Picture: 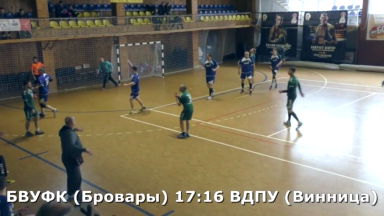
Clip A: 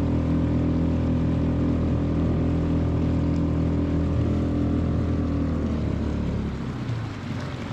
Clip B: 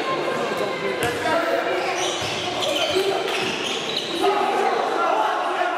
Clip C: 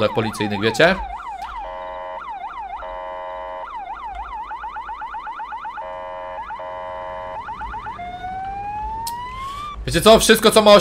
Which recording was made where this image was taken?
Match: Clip B